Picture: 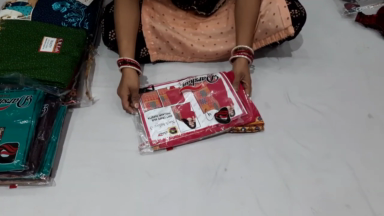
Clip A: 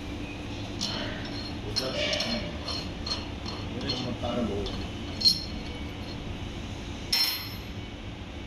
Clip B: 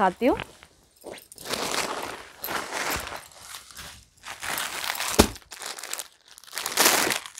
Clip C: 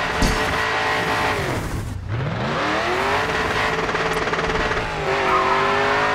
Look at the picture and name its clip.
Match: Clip B